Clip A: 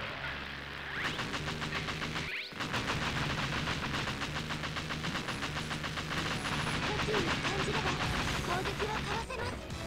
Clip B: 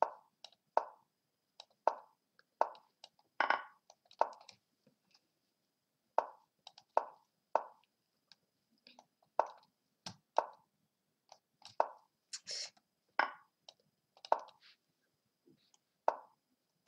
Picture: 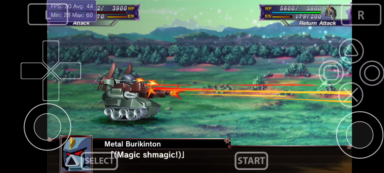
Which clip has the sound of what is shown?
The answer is A